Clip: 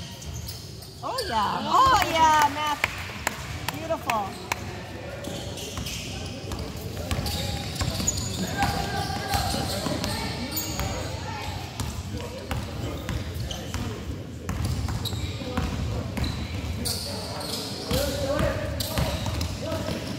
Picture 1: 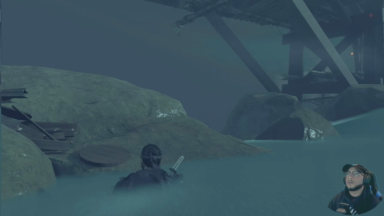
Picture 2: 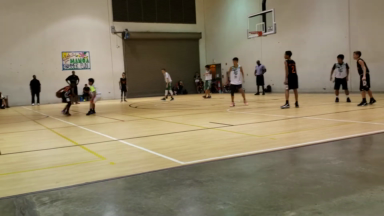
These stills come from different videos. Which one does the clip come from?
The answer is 2